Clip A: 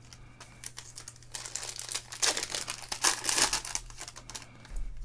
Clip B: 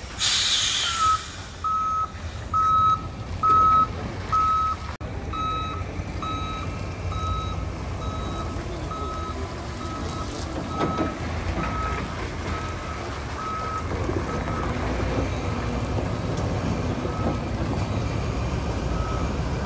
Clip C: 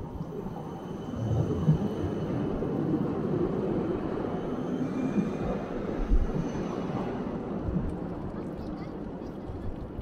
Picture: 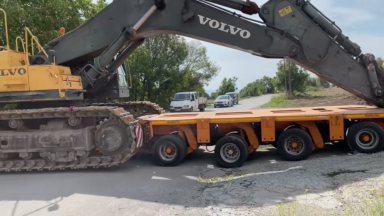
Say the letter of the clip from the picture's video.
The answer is B